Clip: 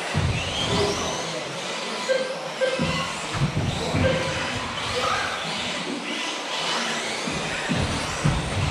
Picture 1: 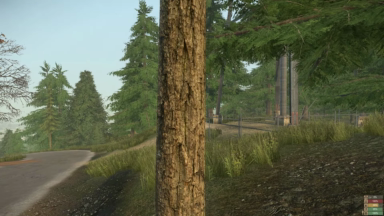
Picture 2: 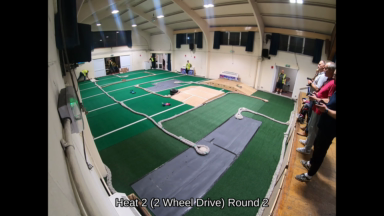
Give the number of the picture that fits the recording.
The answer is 2